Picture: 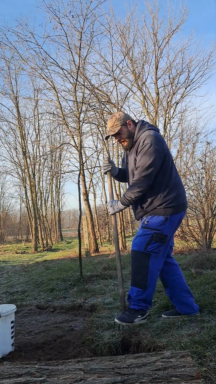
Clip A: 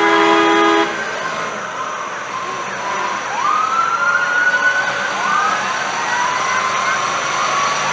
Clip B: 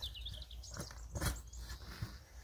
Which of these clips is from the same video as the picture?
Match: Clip B